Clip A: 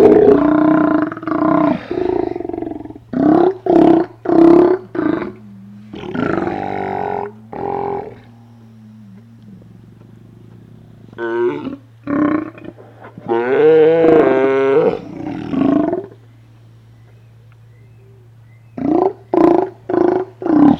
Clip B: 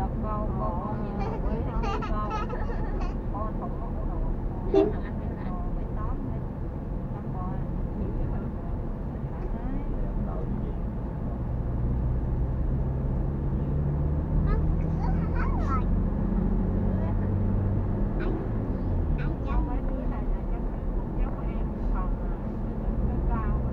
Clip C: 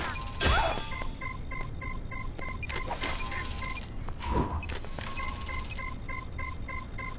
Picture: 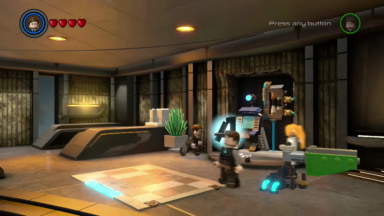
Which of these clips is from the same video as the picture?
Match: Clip C